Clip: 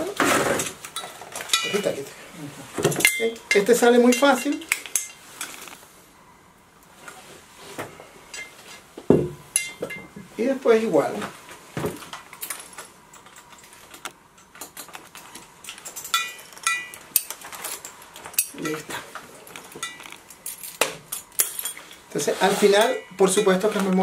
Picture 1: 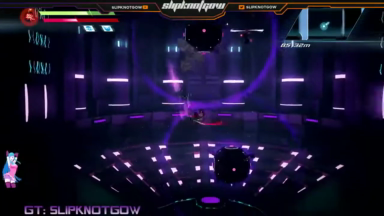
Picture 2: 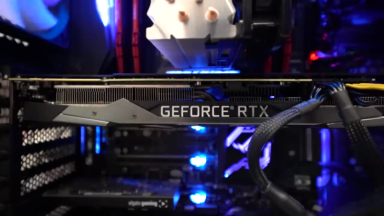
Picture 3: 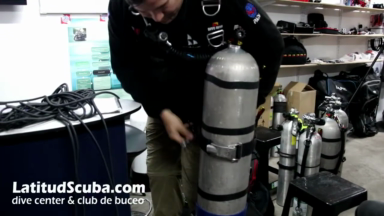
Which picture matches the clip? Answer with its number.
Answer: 3